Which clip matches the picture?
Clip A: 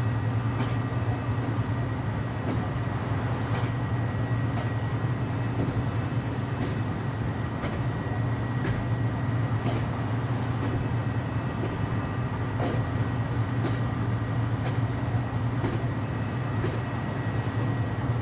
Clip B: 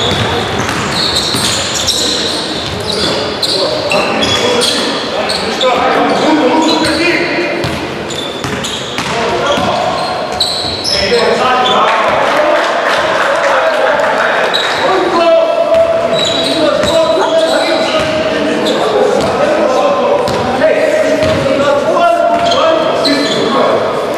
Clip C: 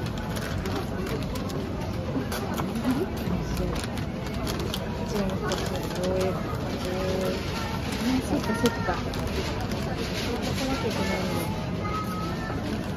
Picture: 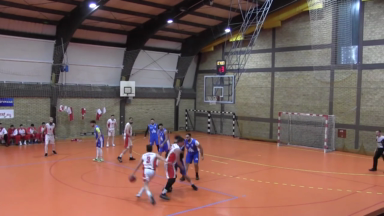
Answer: B